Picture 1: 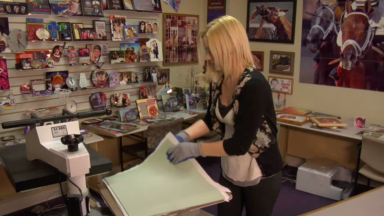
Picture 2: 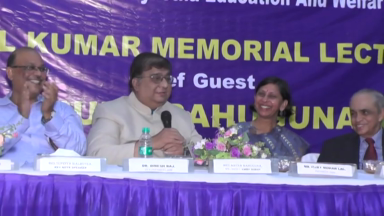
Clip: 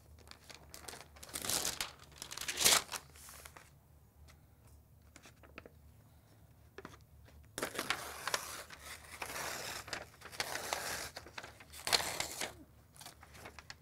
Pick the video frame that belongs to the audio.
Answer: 1